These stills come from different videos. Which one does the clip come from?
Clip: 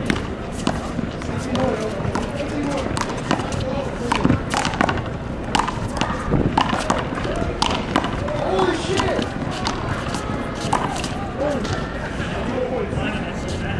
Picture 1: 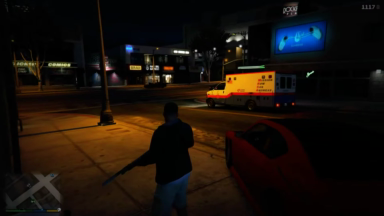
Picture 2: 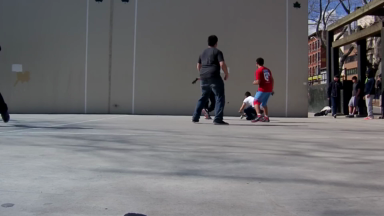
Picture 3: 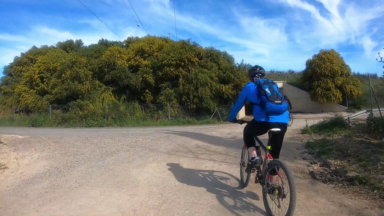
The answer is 2